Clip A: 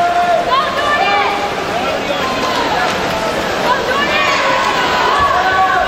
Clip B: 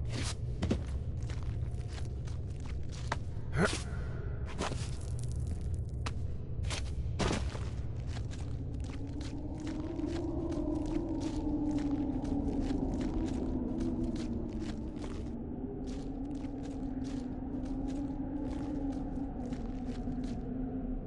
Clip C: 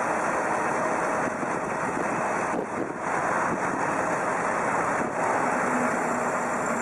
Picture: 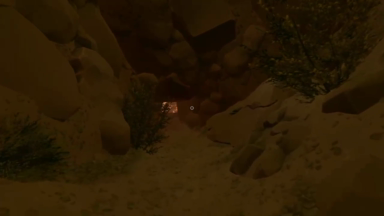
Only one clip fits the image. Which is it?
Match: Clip B